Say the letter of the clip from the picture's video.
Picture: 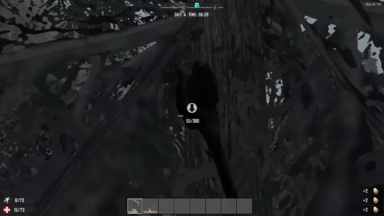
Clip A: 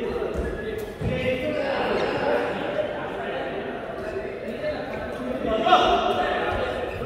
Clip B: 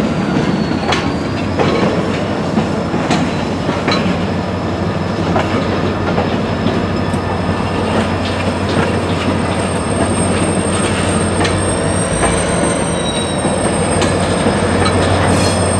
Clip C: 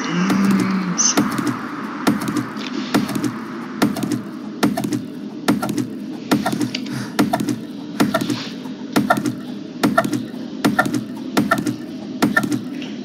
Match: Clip C